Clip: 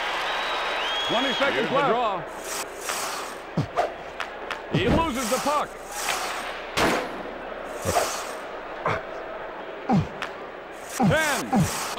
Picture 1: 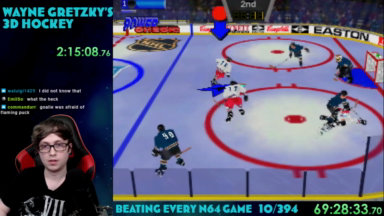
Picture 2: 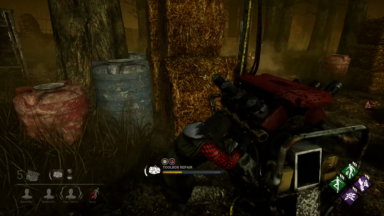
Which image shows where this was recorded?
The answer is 1